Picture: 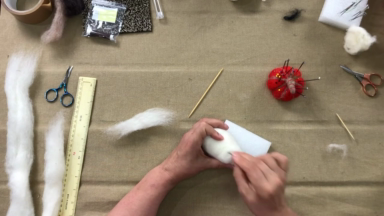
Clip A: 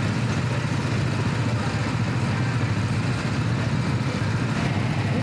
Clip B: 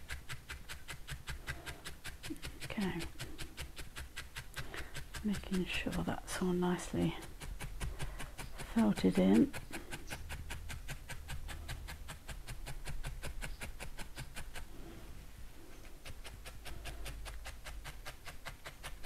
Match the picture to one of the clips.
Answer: B